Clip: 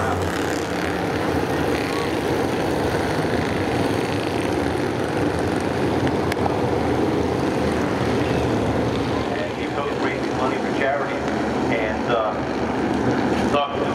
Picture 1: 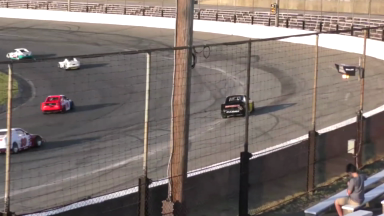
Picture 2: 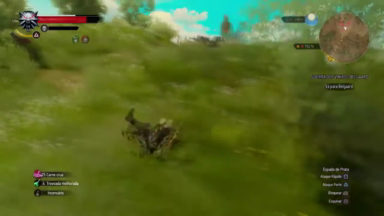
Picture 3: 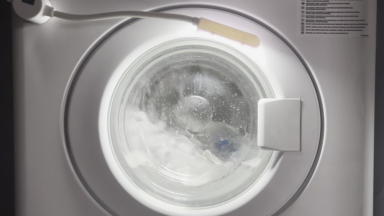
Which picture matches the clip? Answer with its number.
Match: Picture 1